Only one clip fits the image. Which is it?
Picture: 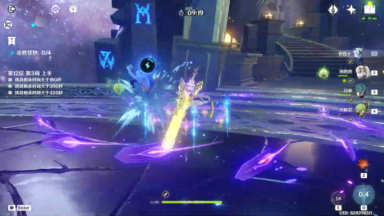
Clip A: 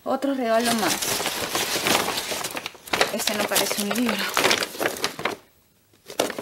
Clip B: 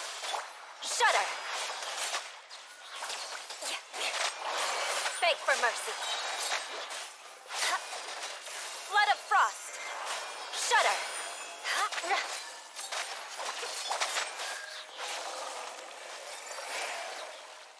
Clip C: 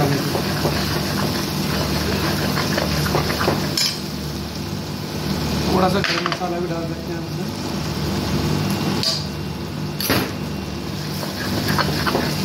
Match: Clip B